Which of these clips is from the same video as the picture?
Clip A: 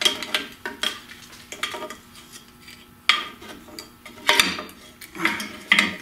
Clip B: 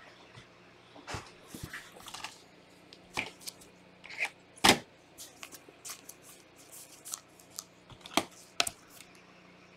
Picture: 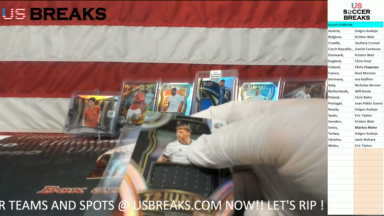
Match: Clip B